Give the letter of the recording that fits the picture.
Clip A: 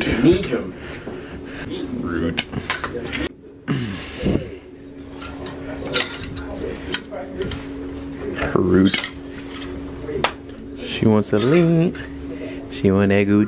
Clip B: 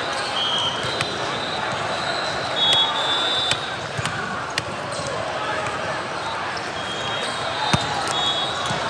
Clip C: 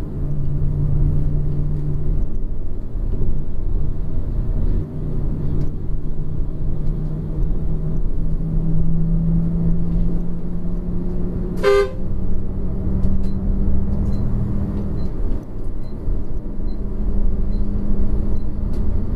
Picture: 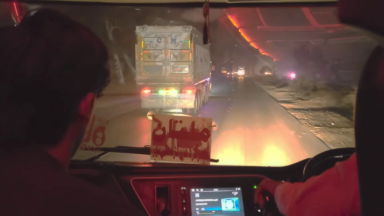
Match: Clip C